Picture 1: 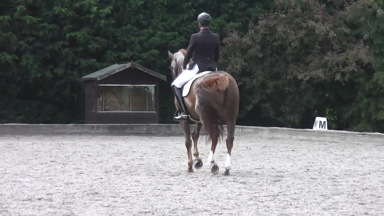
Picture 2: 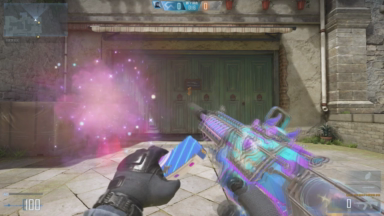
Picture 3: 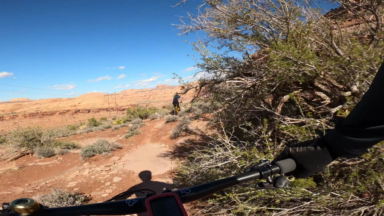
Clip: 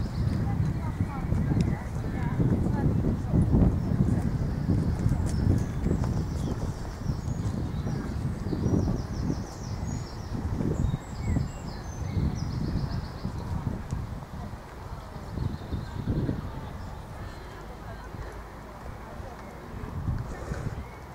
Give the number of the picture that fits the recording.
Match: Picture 1